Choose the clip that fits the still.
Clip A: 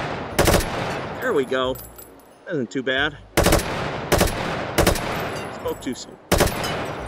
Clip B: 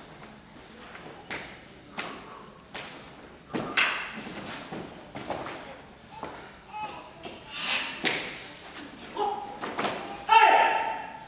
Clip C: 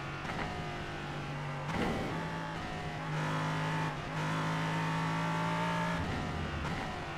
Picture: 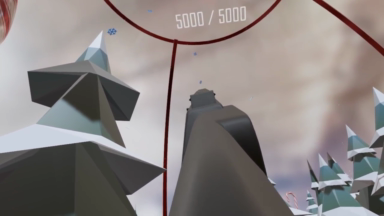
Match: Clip A